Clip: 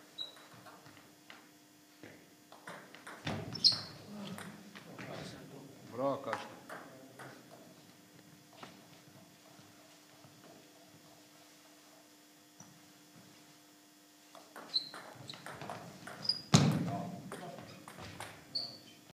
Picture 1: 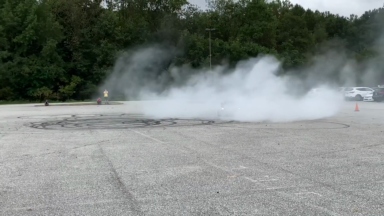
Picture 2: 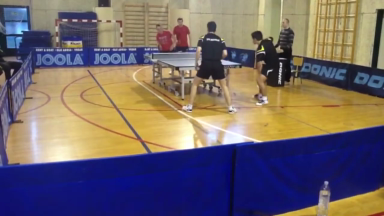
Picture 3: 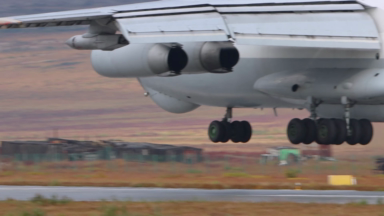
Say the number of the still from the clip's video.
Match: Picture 2